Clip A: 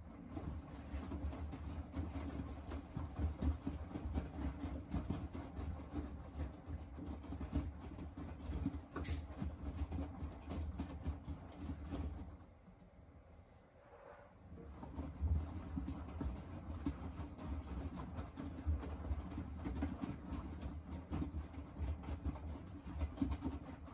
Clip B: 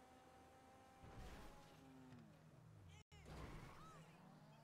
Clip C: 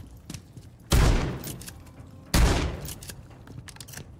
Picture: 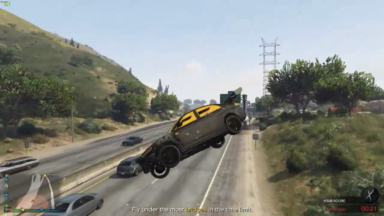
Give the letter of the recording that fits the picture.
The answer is B